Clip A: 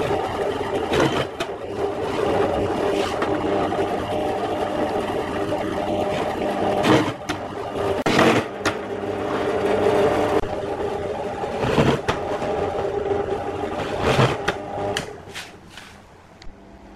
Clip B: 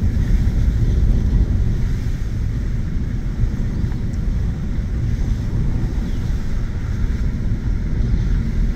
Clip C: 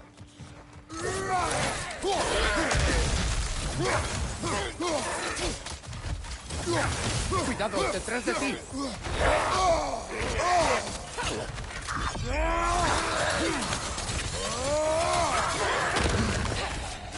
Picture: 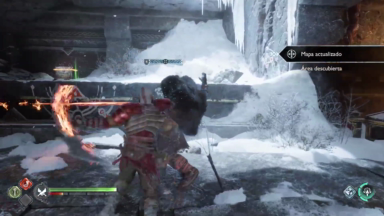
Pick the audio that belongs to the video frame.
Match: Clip C